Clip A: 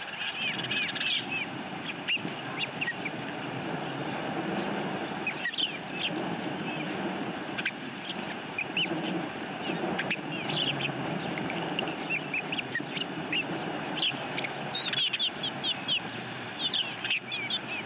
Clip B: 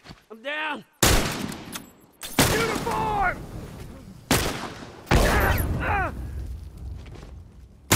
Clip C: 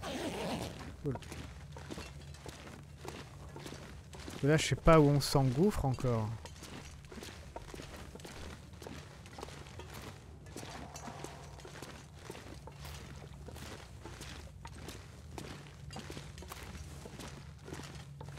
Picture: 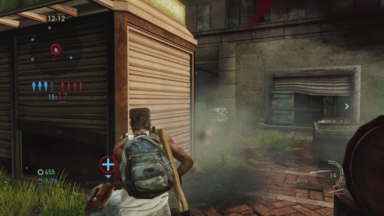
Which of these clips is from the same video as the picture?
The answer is B